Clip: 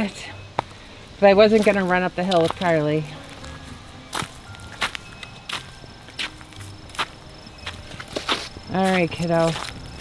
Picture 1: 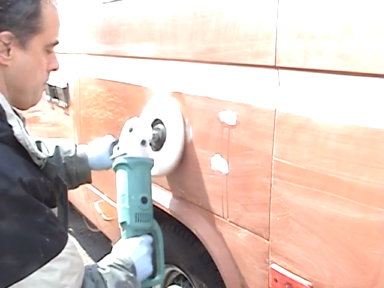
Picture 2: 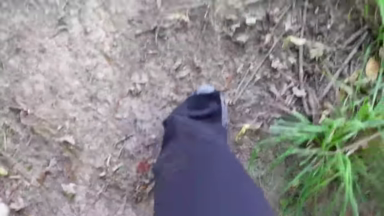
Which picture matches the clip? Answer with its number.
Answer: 2